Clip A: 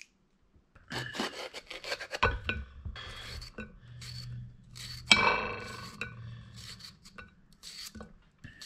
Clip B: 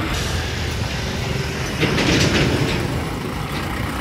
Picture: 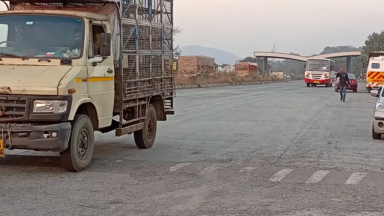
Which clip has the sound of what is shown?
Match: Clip B